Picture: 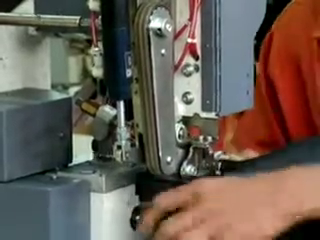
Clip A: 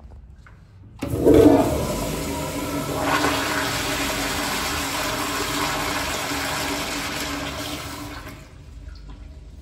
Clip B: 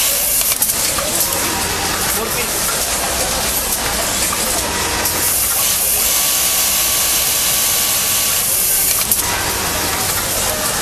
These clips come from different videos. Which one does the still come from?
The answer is B